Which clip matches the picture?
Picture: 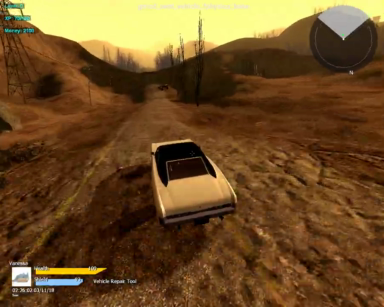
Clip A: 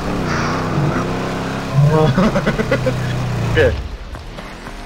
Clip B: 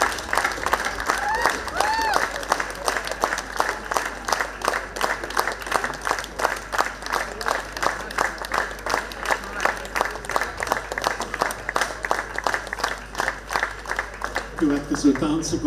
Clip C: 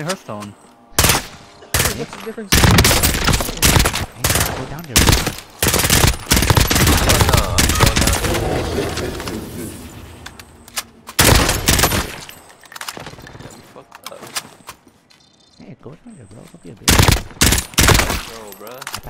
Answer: A